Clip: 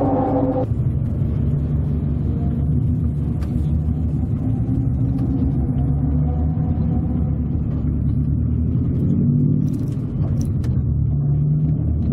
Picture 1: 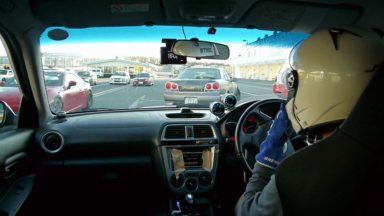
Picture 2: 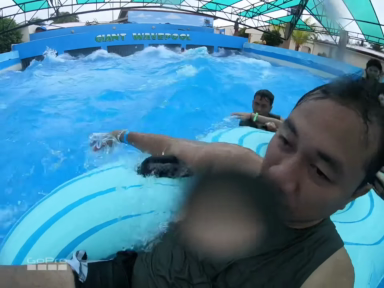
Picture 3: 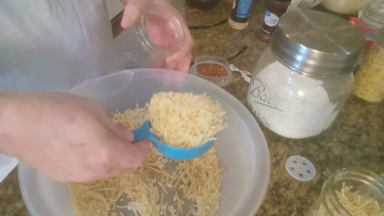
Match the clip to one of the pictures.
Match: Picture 1